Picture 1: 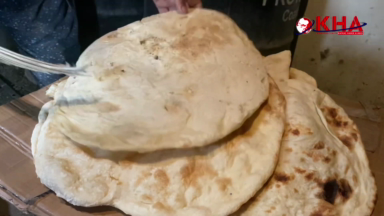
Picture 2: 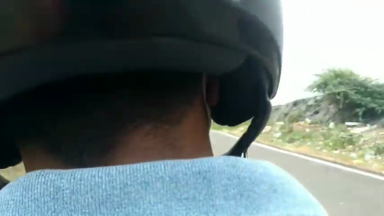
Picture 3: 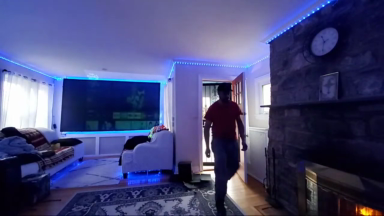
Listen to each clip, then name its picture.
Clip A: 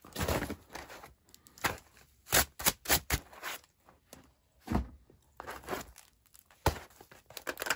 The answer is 1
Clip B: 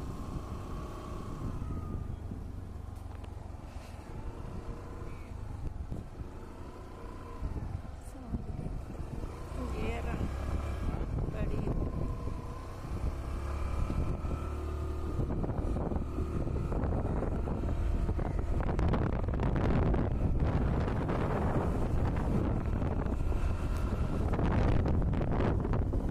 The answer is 2